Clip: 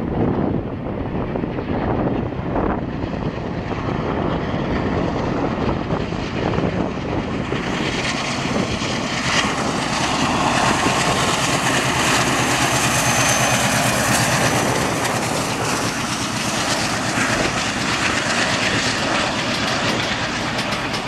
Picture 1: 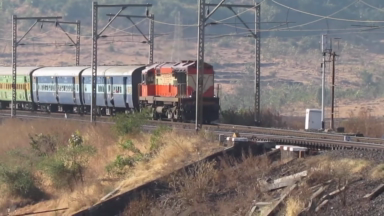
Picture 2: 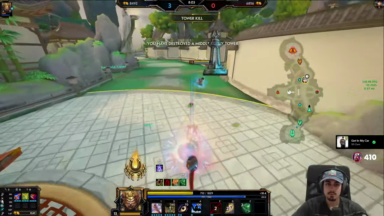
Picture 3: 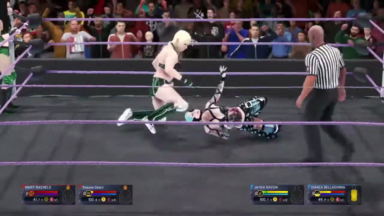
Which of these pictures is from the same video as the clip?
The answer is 1